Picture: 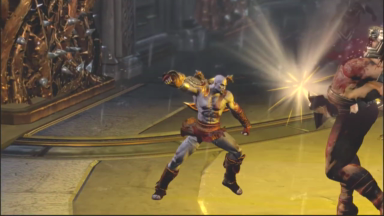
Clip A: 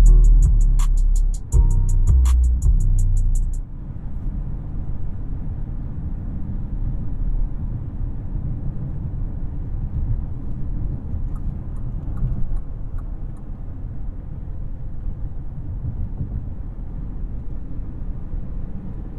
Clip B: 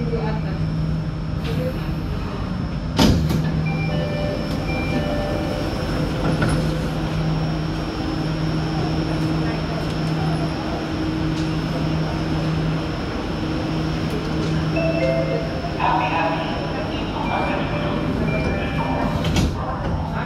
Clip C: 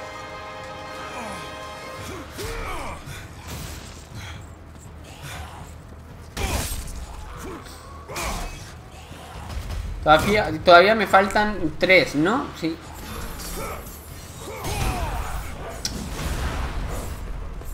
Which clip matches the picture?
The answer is C